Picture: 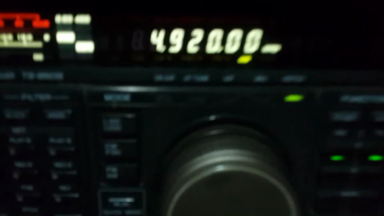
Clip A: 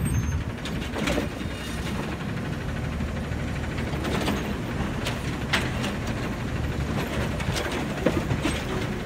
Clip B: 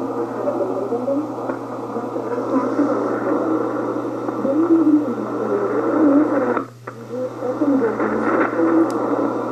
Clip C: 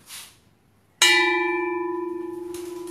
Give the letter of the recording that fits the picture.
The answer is B